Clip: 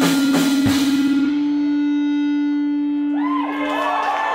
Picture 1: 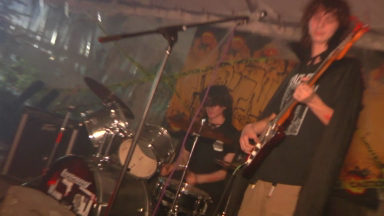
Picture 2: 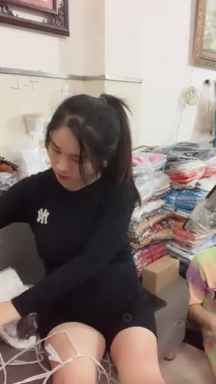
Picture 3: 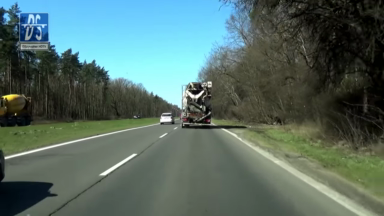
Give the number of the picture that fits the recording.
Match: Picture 1